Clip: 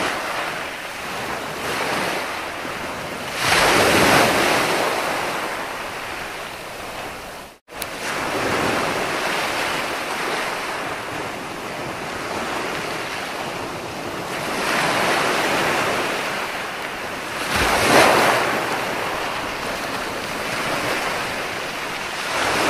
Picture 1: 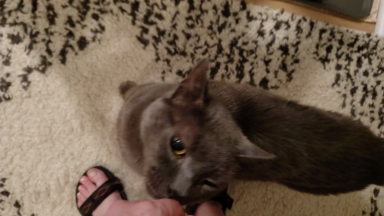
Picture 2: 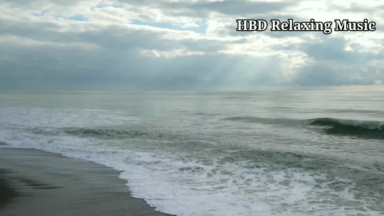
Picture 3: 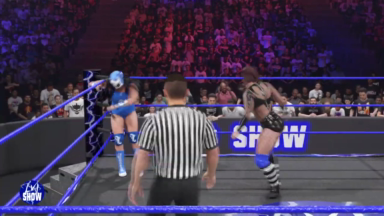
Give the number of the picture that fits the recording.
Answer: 2